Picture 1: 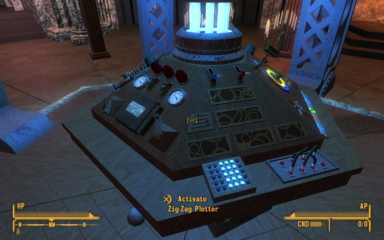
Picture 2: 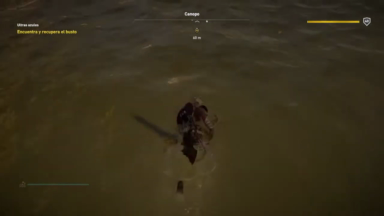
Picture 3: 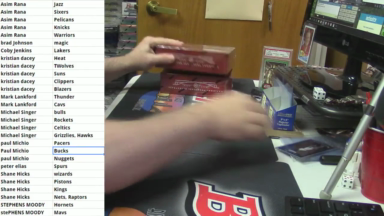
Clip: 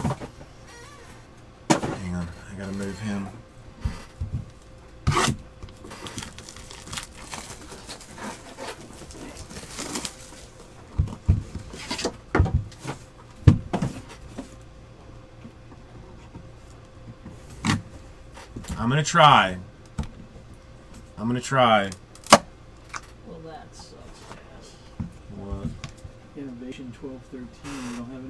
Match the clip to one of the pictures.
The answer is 3